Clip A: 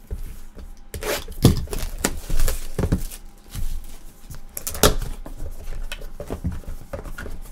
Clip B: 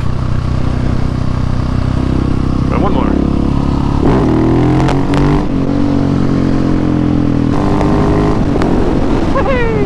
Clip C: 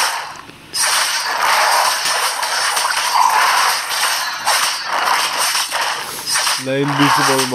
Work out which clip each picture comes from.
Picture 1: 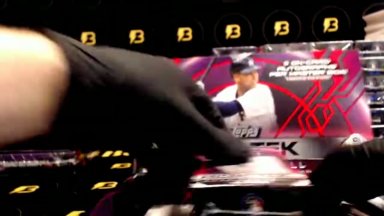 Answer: A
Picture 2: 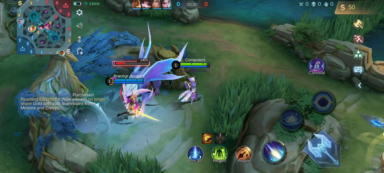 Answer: C